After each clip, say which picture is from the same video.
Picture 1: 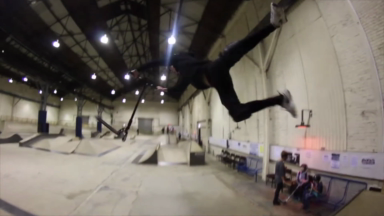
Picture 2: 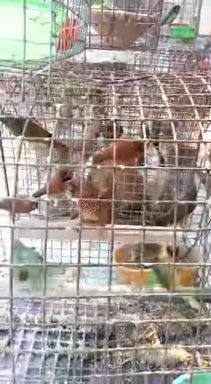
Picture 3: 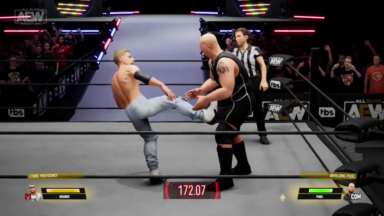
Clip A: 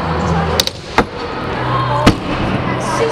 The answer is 1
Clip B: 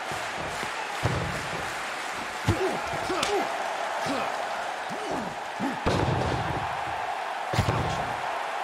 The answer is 3